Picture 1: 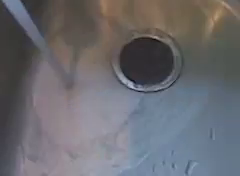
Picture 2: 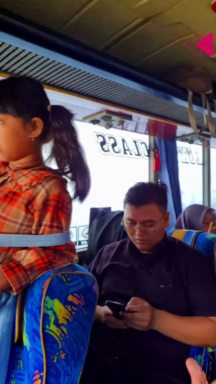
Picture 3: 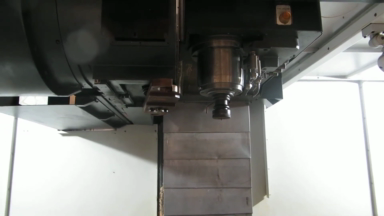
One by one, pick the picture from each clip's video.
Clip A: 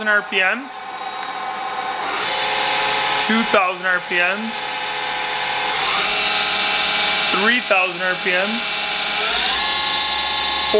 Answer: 3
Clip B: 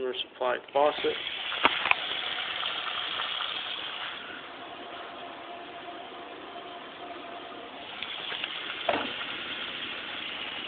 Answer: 1